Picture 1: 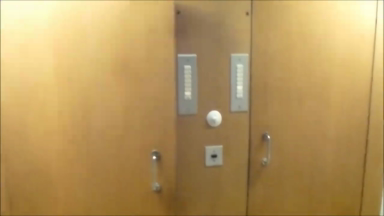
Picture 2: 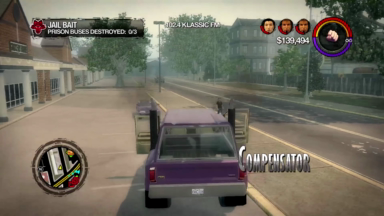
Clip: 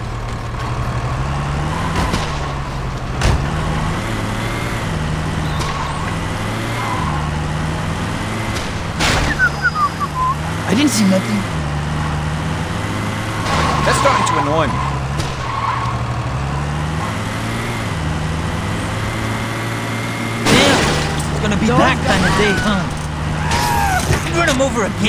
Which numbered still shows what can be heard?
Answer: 2